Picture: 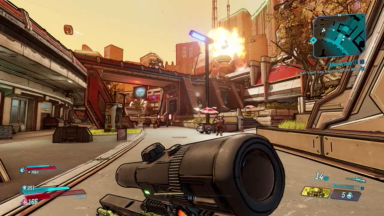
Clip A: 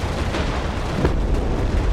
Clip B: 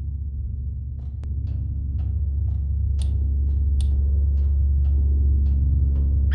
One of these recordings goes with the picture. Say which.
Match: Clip A